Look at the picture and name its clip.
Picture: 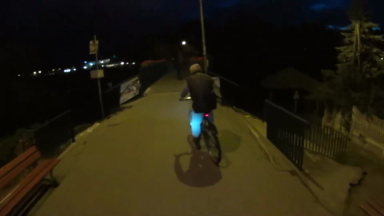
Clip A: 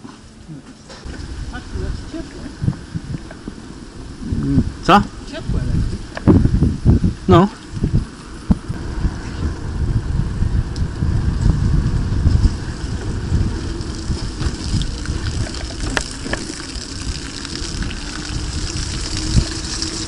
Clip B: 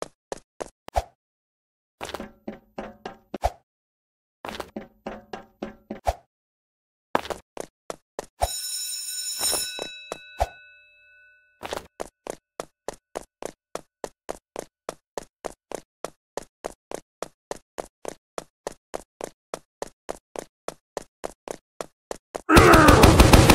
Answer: A